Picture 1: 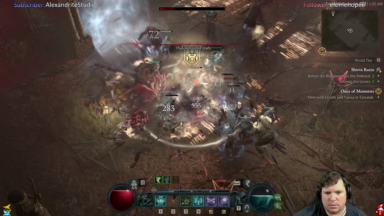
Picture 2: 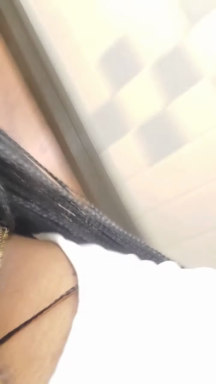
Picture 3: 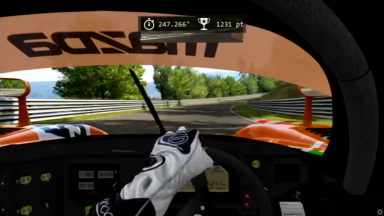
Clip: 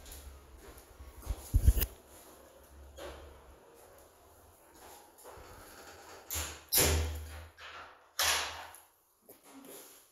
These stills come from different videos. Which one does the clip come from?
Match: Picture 2